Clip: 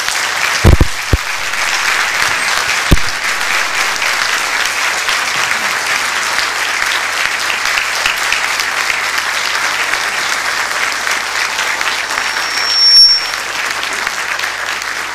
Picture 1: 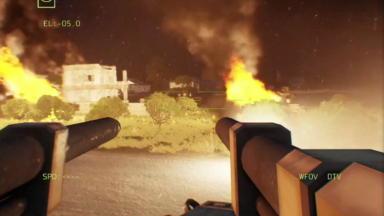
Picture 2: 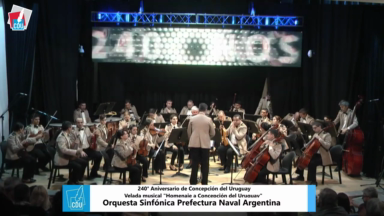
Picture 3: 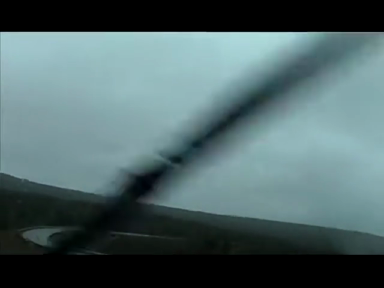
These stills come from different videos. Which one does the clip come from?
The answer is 2